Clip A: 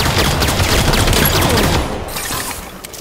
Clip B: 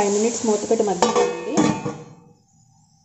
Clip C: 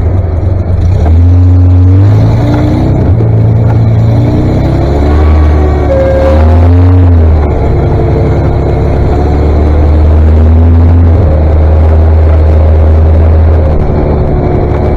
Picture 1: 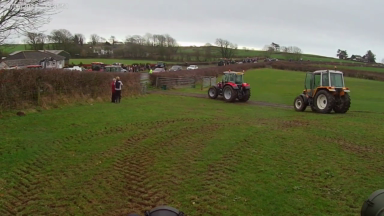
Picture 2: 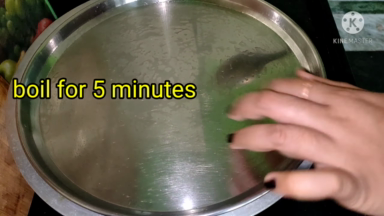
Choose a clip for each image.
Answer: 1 C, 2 B